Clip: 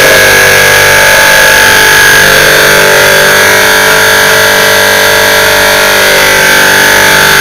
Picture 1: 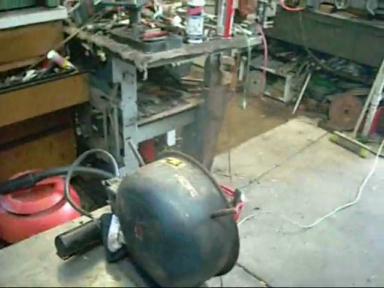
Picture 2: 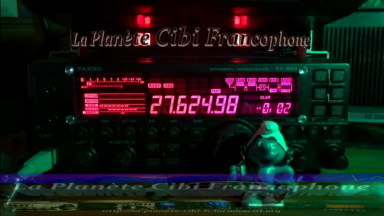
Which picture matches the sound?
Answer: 1